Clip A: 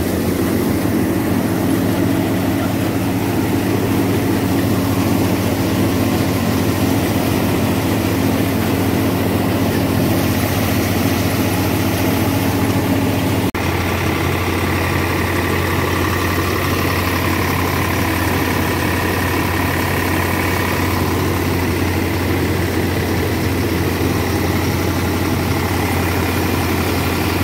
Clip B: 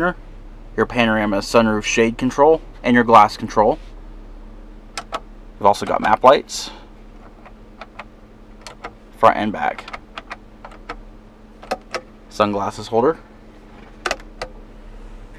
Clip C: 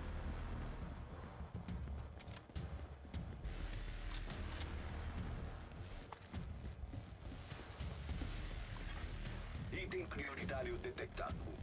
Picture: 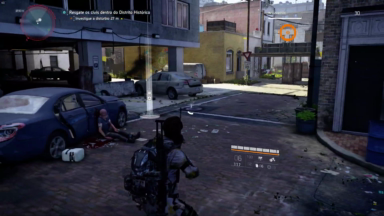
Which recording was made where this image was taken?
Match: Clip C